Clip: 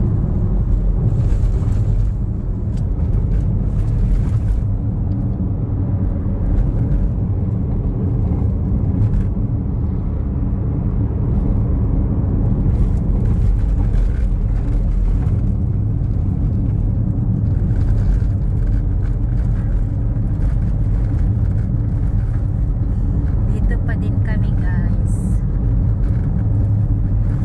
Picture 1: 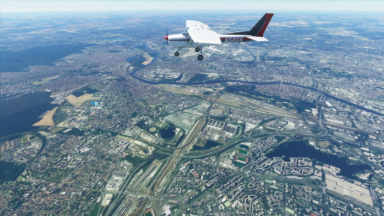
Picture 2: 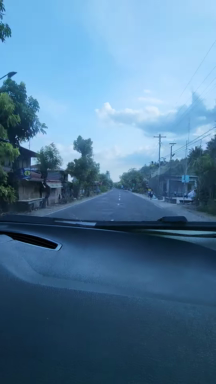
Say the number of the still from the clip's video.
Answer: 2